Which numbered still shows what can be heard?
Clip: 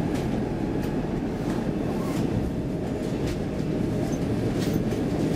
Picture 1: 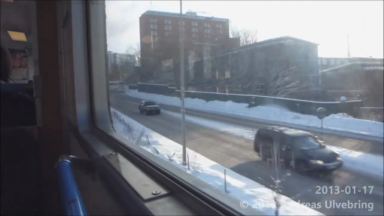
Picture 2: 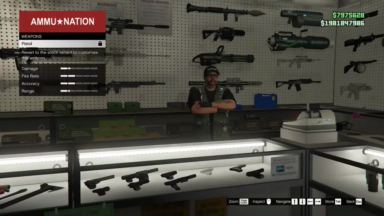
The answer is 1